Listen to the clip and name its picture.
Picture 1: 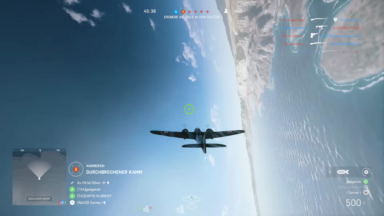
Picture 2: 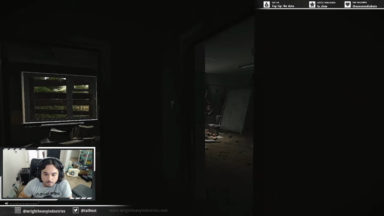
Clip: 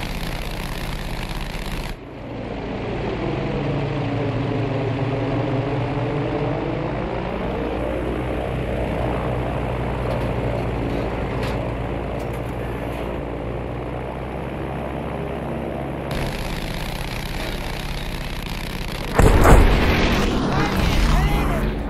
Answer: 1